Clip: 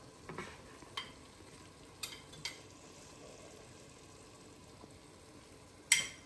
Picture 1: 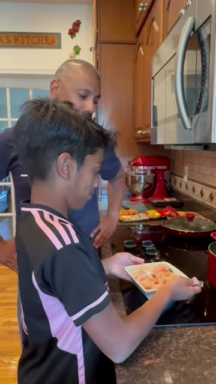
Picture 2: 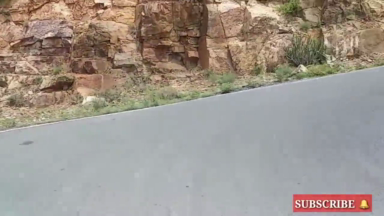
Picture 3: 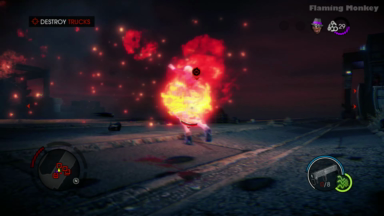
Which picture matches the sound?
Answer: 1